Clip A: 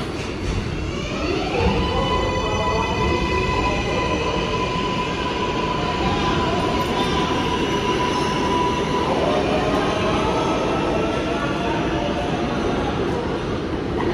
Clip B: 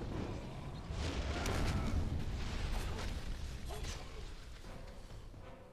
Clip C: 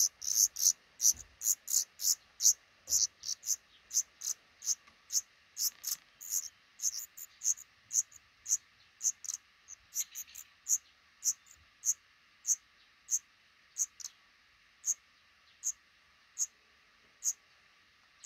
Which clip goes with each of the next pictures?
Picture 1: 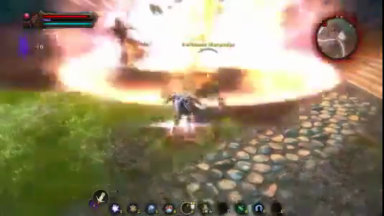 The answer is B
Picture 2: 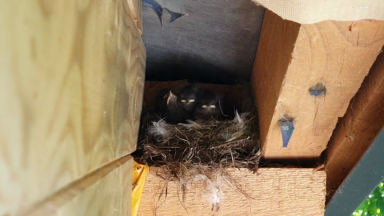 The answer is C